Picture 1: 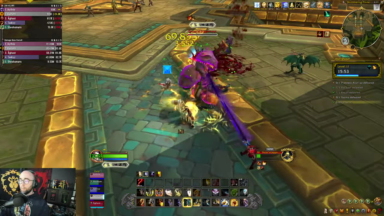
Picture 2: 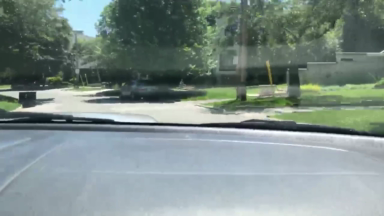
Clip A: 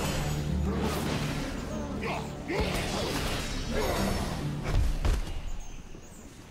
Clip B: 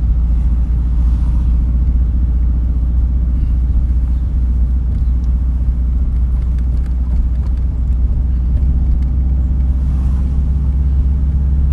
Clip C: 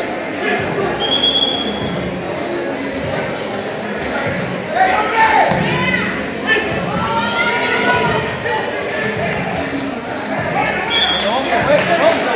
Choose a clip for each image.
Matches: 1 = A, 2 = B